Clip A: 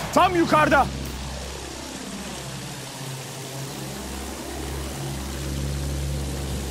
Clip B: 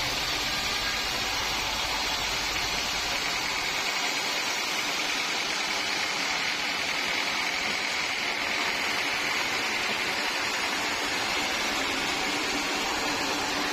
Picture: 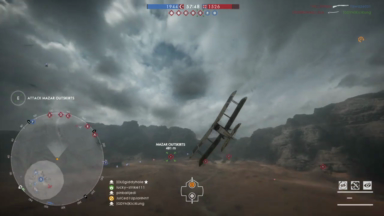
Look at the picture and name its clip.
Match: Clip A